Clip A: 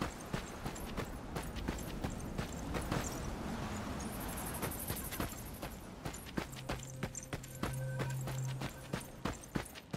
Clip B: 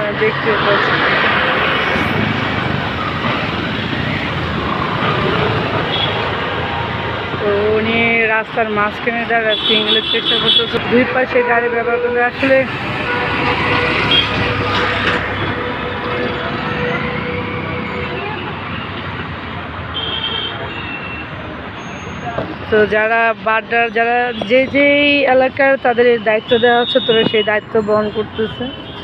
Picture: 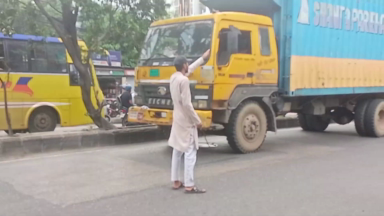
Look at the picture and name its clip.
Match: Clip B